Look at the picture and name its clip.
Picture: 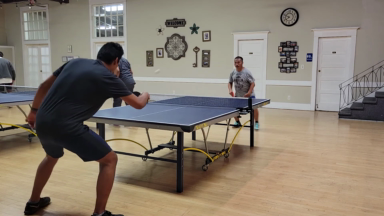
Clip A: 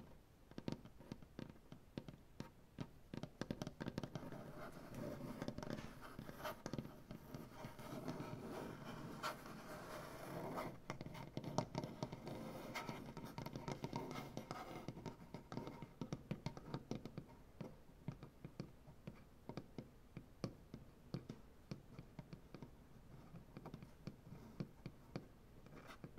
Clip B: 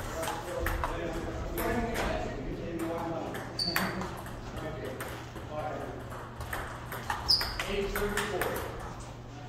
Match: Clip B